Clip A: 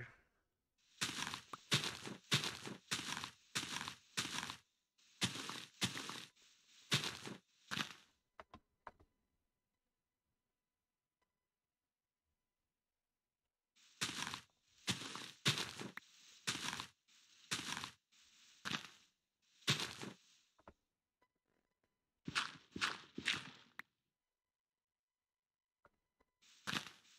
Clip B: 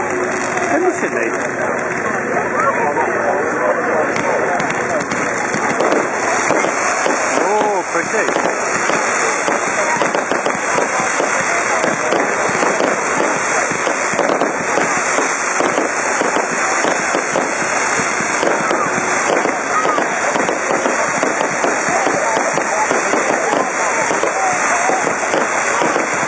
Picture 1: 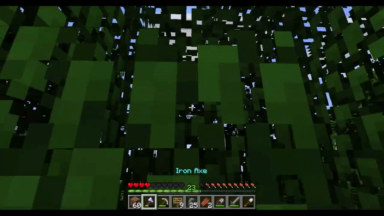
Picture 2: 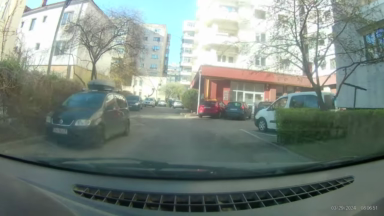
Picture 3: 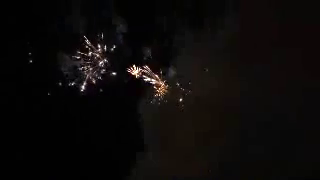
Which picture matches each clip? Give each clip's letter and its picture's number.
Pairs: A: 1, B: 3